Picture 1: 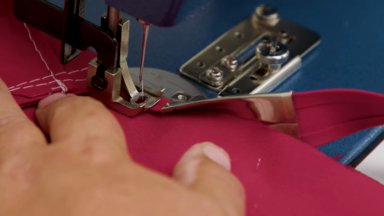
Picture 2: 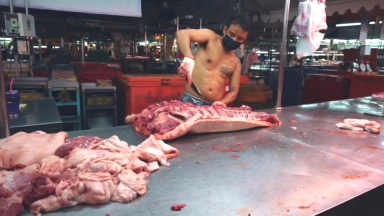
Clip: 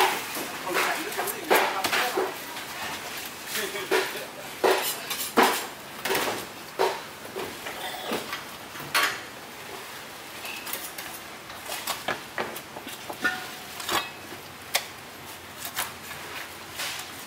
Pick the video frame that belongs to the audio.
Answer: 2